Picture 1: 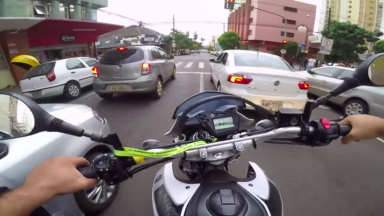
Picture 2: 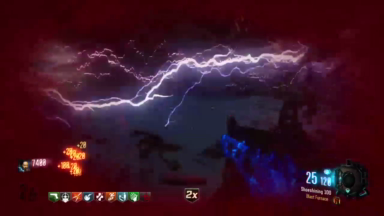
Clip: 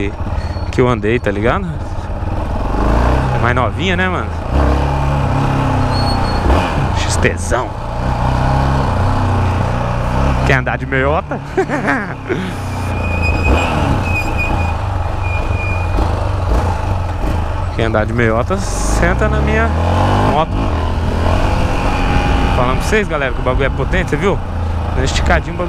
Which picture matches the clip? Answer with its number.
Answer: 1